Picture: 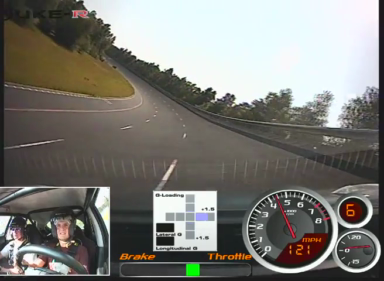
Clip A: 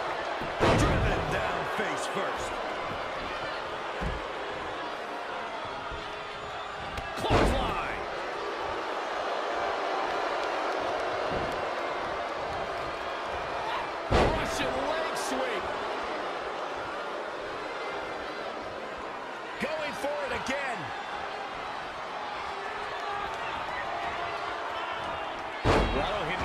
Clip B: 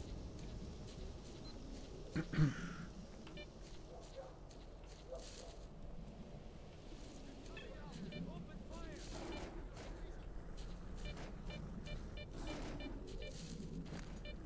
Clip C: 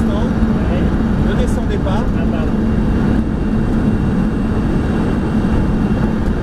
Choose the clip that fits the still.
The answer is C